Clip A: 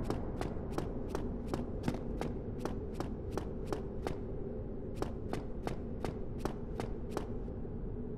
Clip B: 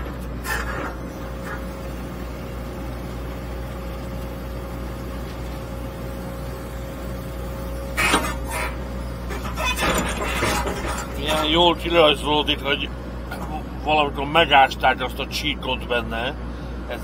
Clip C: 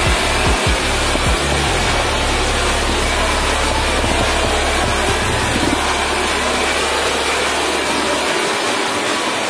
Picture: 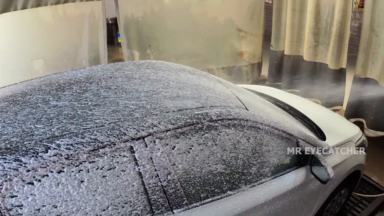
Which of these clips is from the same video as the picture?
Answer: C